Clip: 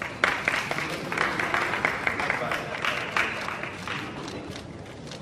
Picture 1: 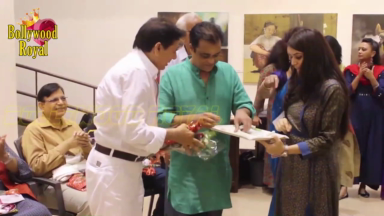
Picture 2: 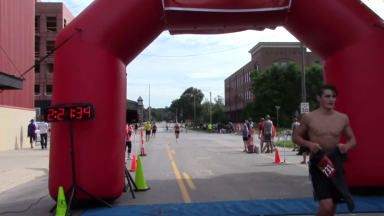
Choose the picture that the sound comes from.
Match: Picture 1